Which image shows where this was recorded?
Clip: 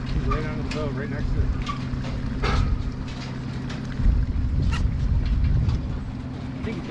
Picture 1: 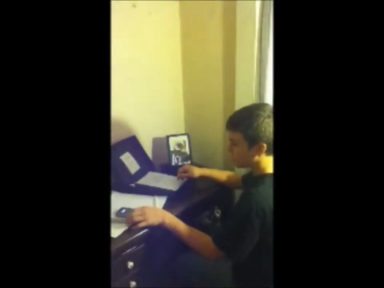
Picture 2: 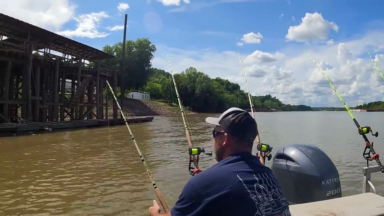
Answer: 2